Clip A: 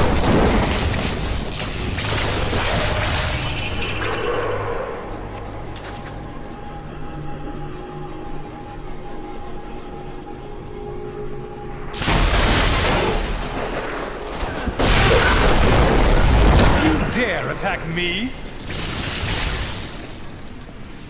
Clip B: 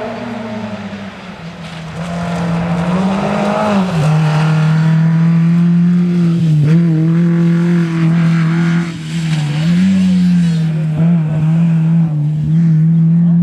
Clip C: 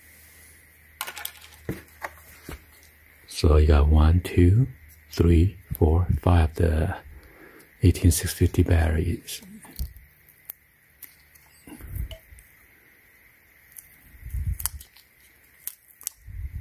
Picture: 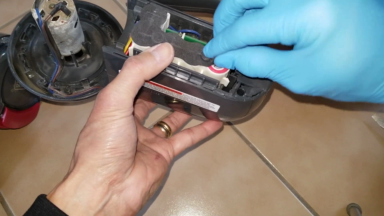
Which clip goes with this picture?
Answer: C